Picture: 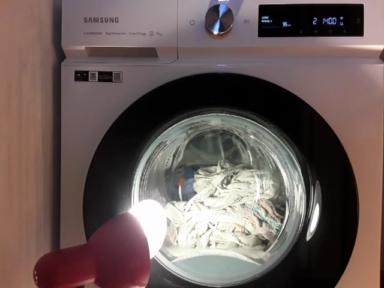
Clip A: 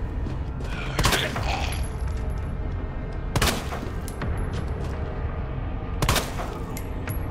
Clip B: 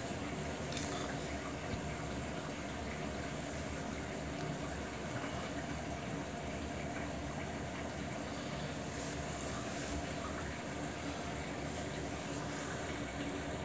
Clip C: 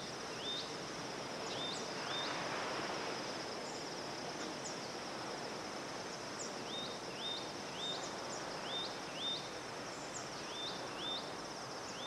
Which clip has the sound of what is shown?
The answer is B